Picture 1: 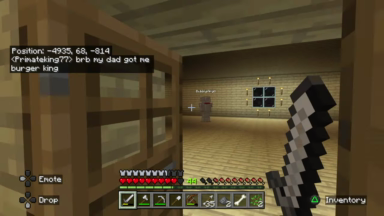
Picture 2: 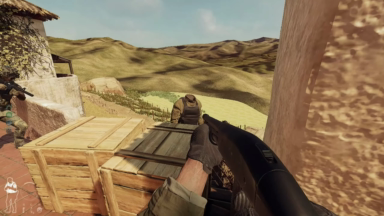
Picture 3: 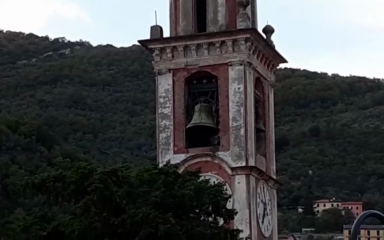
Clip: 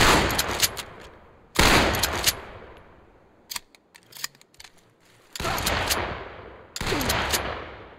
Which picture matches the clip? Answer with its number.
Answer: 2